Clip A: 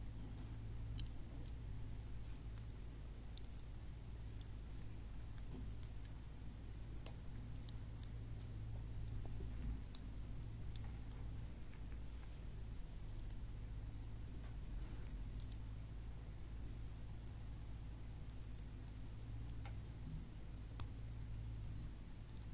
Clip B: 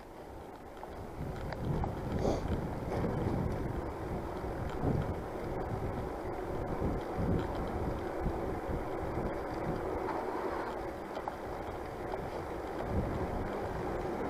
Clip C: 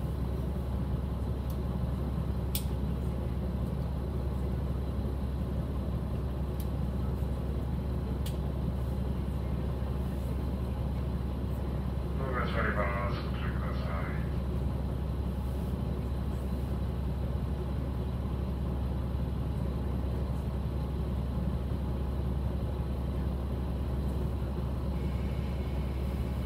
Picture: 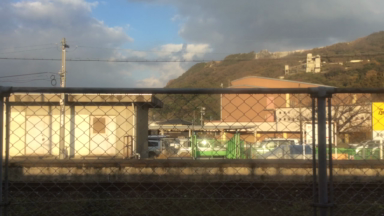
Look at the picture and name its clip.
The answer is C